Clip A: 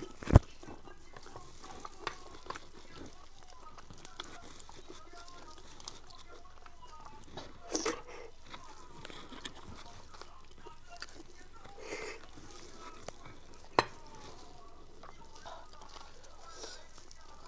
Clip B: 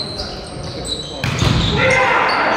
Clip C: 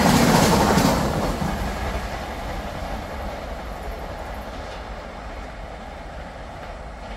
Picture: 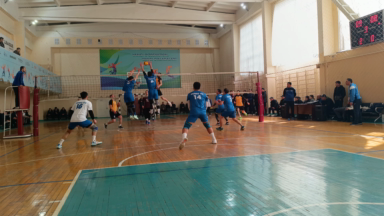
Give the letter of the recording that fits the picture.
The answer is B